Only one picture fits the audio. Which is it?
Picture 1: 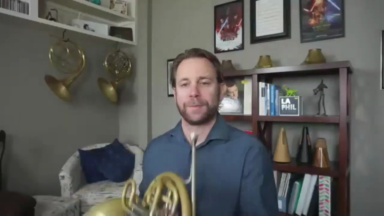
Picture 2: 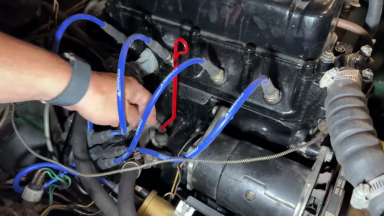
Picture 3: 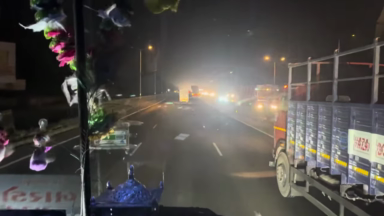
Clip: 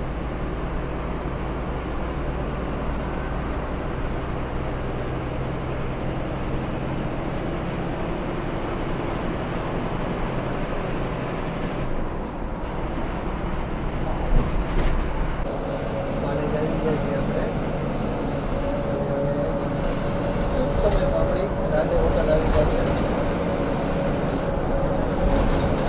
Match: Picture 3